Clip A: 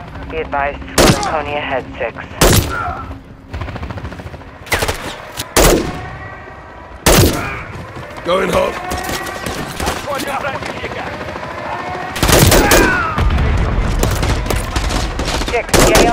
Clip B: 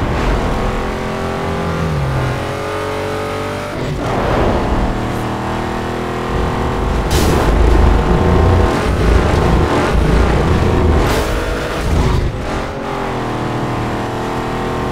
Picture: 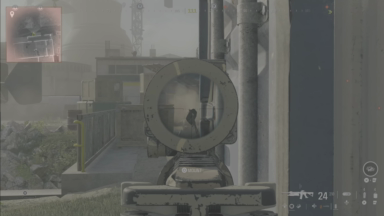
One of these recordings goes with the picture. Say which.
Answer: A